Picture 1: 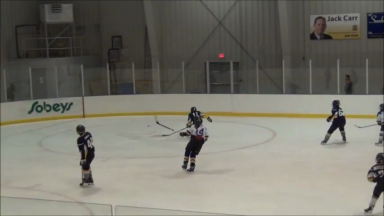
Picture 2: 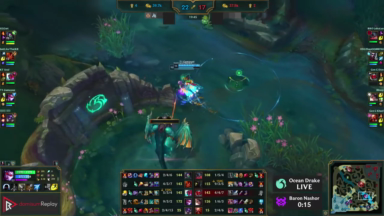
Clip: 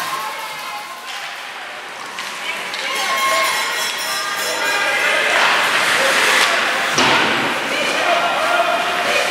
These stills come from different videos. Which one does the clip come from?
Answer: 1